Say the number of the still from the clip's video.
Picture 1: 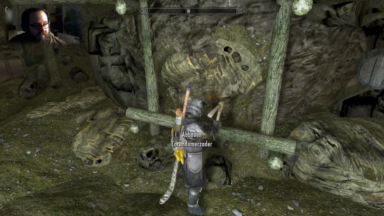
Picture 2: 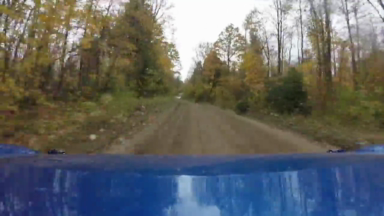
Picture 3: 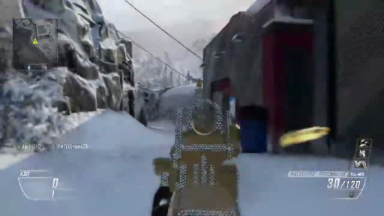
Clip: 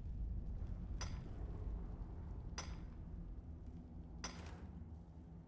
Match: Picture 1